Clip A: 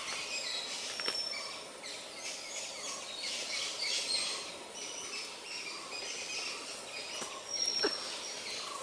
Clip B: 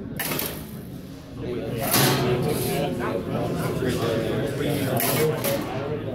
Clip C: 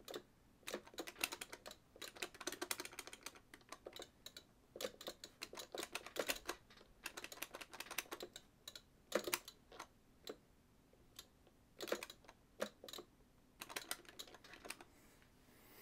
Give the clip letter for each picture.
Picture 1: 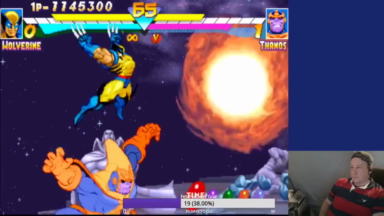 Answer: C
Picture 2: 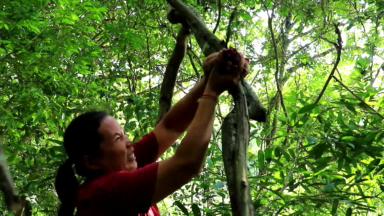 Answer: A